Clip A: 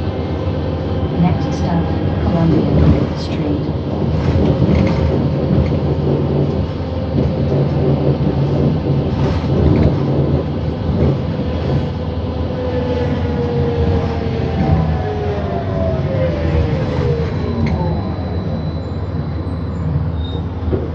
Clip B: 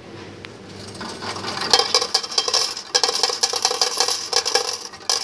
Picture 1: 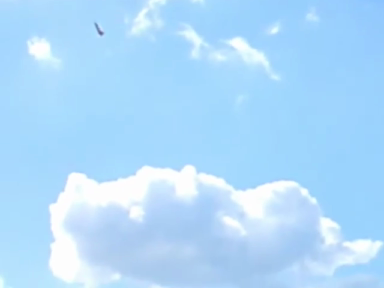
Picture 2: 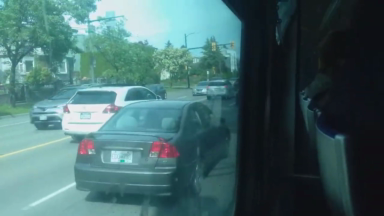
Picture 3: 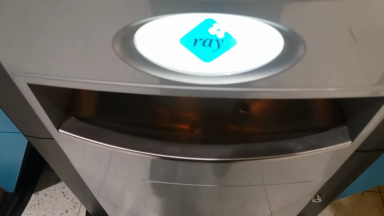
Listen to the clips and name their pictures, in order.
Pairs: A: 2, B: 3